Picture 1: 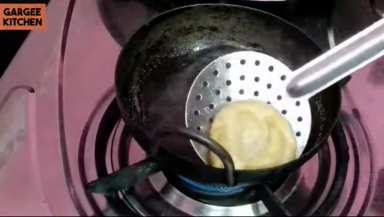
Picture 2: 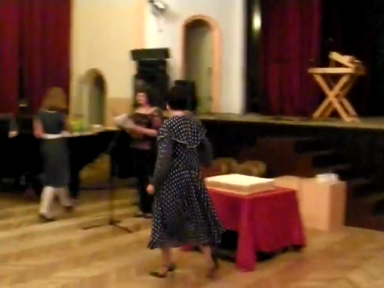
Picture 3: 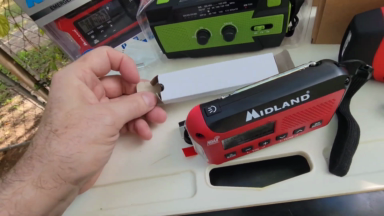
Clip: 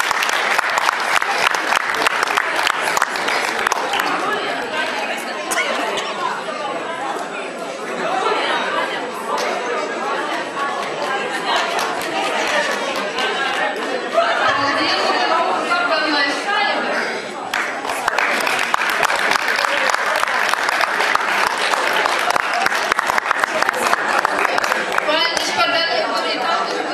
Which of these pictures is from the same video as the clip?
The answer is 2